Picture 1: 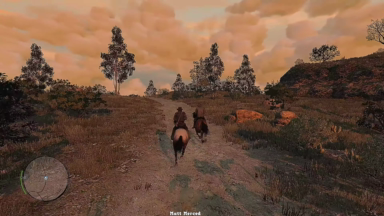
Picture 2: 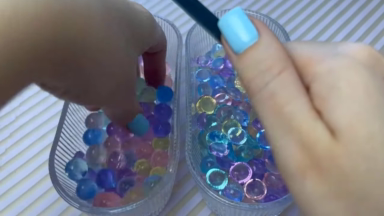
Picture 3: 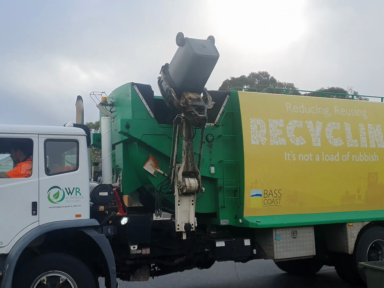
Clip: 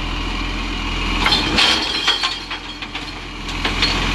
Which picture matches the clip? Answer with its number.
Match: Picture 3